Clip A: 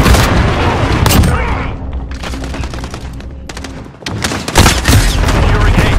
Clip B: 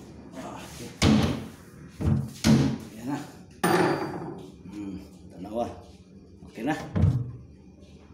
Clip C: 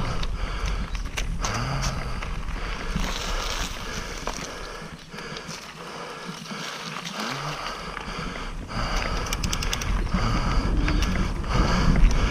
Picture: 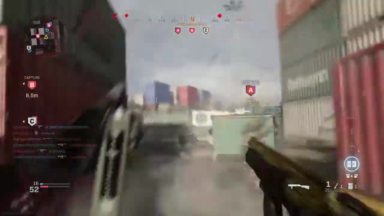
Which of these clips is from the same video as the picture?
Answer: A